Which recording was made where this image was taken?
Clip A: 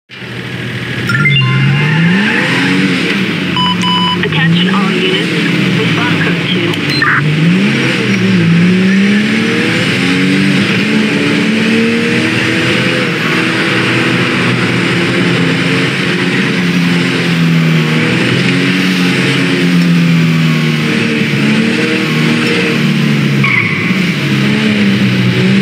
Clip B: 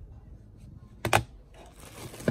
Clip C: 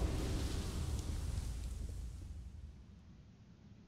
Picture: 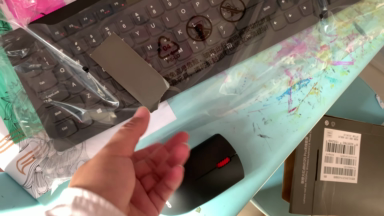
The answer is B